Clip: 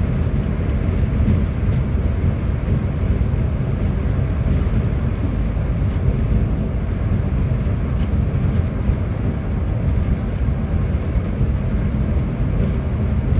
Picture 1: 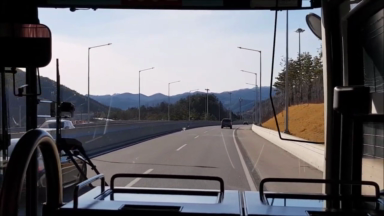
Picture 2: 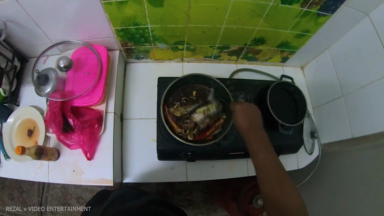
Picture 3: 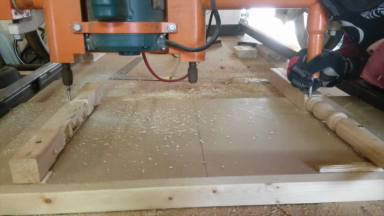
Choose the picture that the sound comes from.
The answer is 1